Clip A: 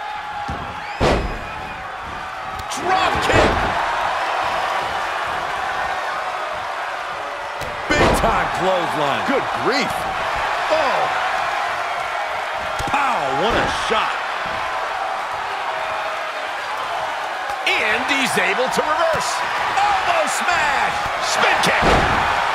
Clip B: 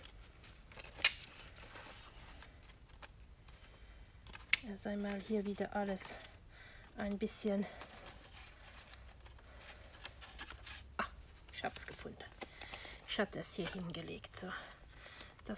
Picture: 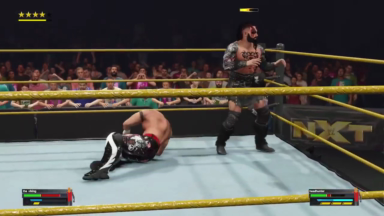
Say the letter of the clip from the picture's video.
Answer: A